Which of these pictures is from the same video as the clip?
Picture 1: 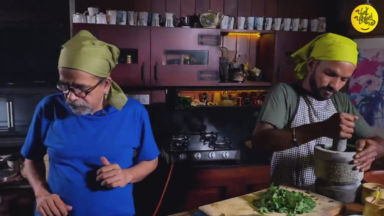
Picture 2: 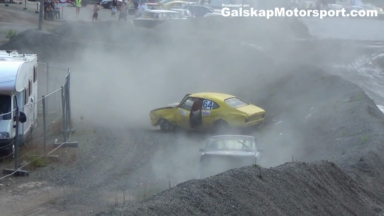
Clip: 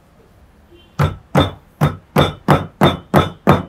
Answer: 1